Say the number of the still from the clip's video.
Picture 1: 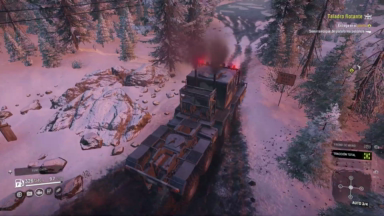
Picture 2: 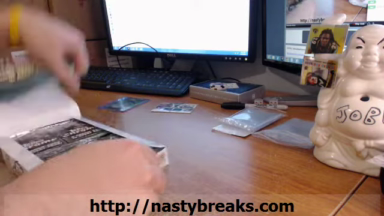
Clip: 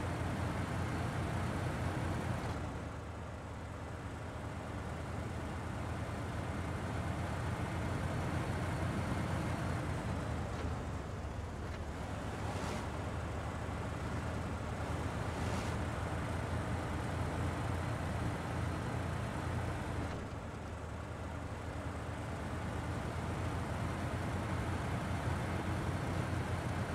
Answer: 1